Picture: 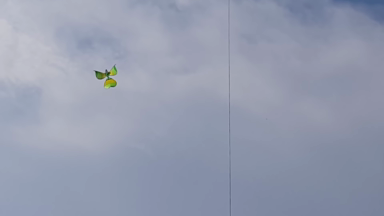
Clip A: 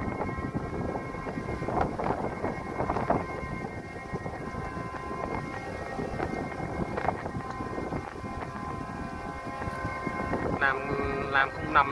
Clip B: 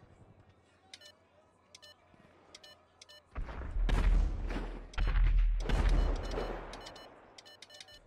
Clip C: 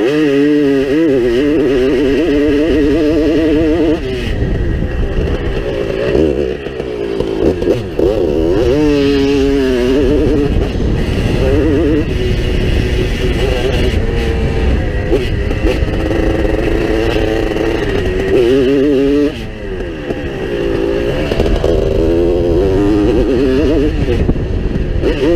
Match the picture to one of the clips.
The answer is A